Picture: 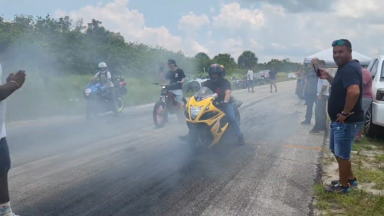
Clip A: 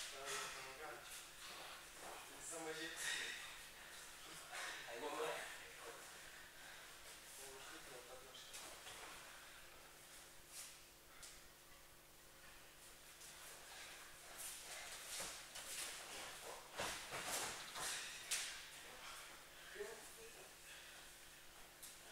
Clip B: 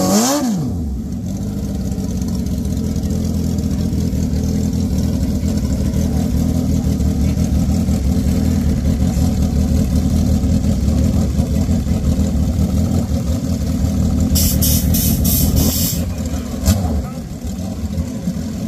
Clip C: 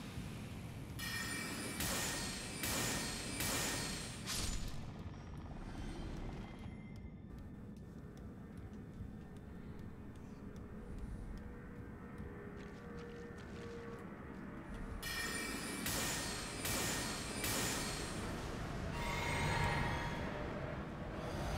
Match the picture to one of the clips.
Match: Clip B